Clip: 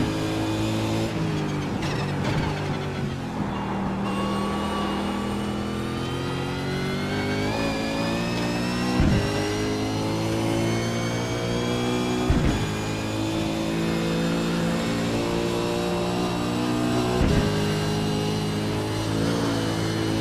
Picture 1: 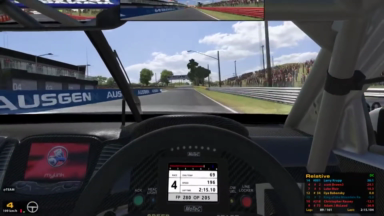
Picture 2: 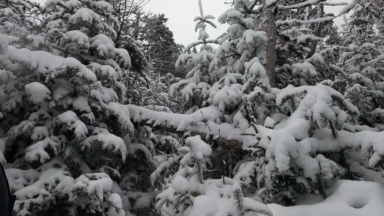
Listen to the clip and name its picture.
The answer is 1